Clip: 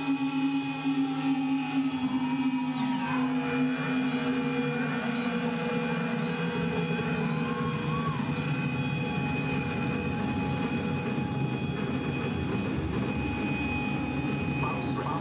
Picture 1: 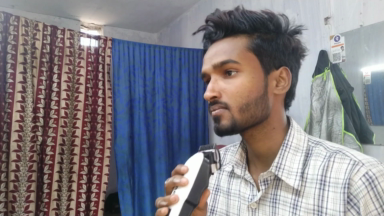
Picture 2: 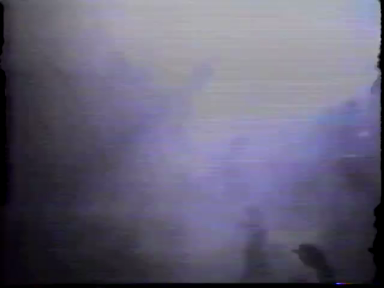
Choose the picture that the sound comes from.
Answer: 2